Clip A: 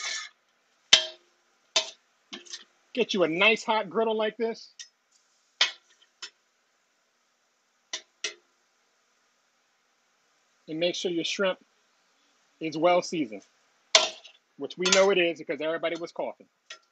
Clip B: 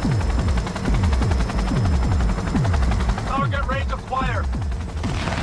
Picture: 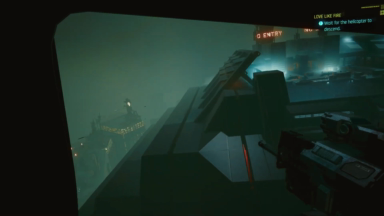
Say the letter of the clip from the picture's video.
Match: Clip B